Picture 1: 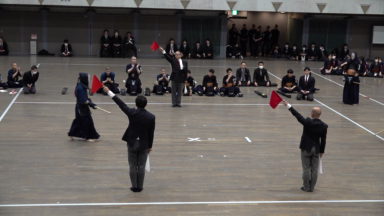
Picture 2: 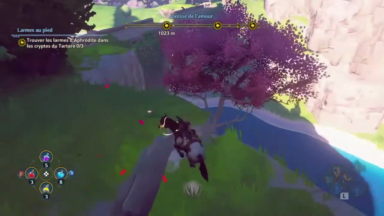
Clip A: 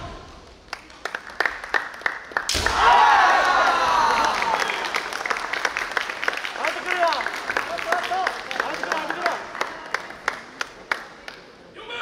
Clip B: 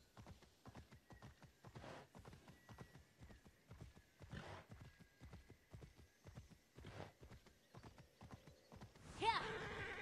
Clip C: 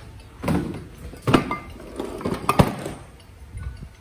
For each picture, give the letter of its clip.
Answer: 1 A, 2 B